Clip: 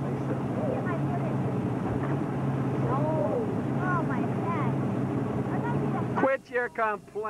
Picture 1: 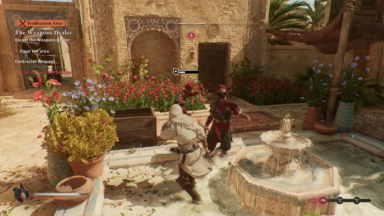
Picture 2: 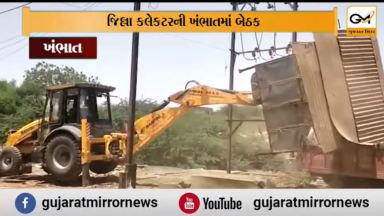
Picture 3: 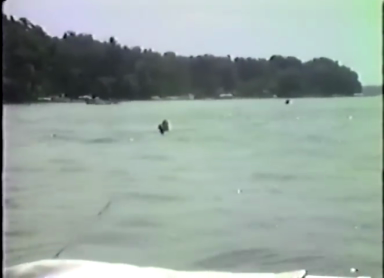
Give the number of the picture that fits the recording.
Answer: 3